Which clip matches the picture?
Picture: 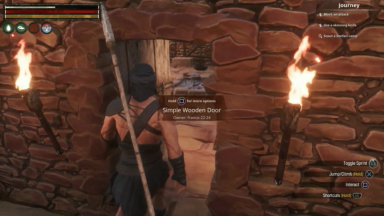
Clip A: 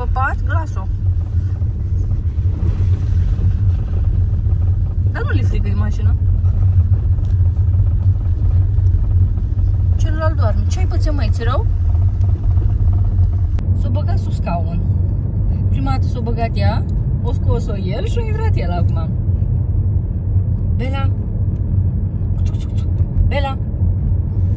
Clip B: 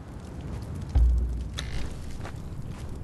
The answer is B